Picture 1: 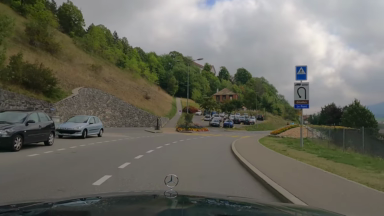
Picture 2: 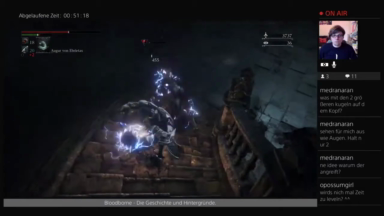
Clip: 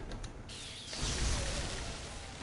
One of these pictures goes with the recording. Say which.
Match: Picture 2